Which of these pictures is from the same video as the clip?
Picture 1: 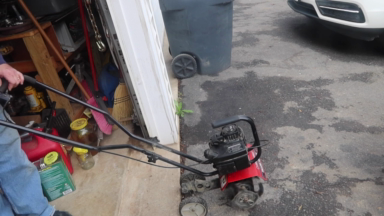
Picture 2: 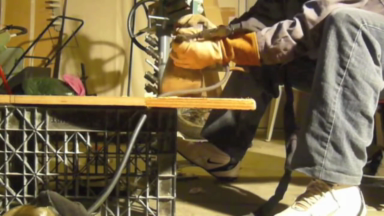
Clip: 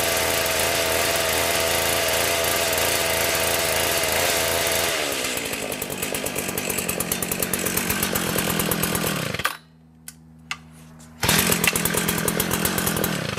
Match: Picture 1